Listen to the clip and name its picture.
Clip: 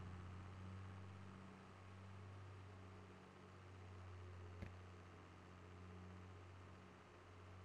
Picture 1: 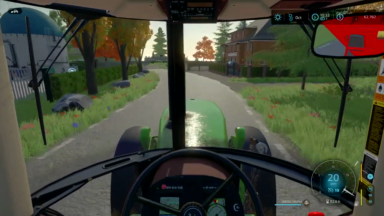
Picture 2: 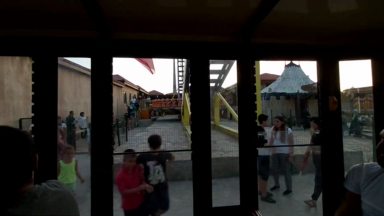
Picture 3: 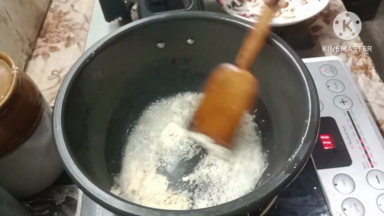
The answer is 1